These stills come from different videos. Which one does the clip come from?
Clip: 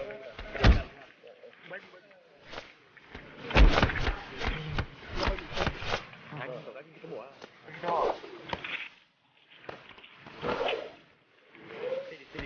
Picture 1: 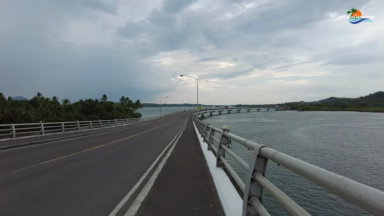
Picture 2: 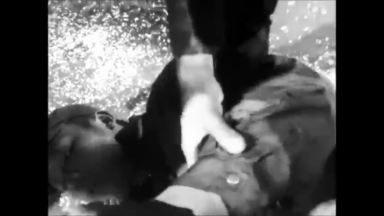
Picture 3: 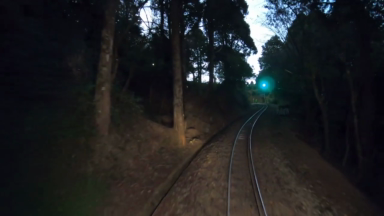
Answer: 2